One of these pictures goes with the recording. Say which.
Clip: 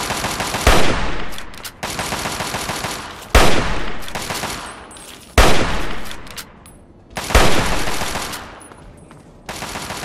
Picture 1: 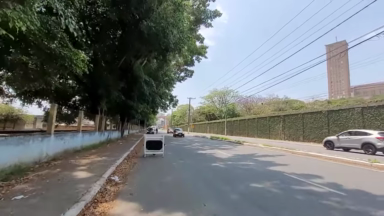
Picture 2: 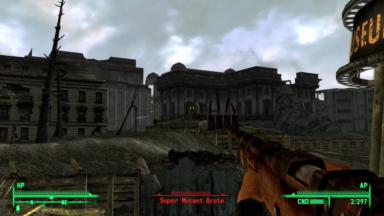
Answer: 2